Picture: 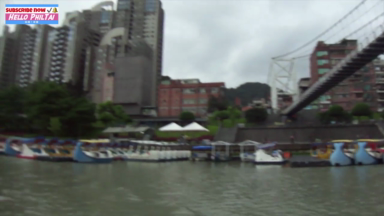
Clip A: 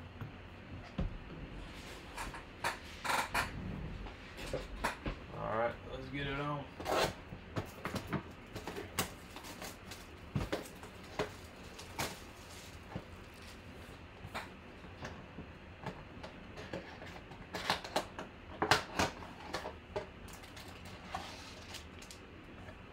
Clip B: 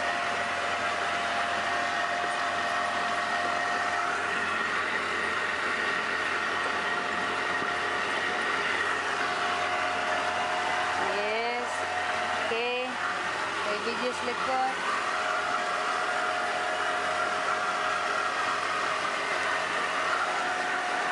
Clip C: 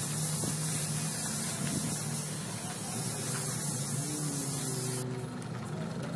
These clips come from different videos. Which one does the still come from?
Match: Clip B